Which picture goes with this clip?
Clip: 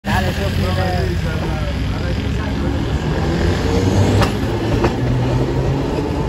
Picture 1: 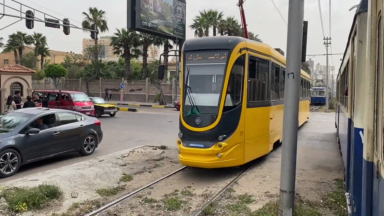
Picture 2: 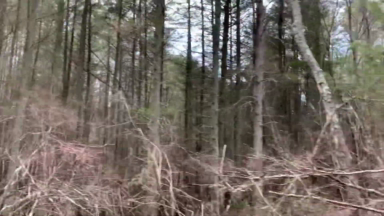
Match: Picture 1